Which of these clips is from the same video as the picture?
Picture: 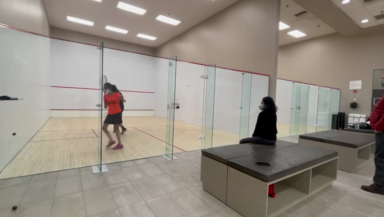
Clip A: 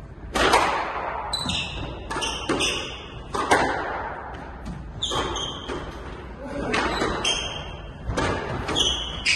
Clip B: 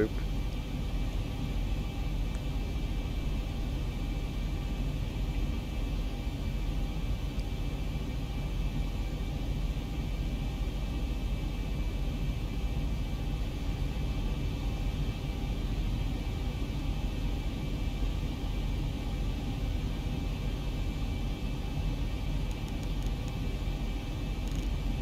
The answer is A